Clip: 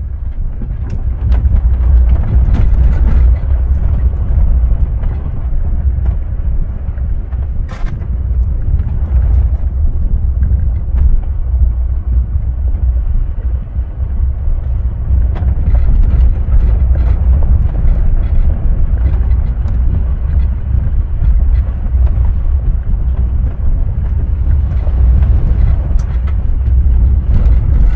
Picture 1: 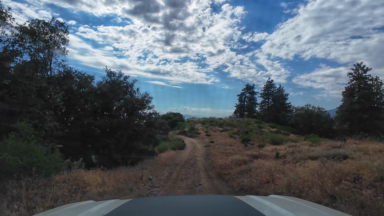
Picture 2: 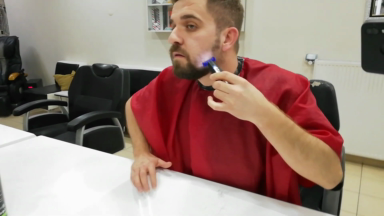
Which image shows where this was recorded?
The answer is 1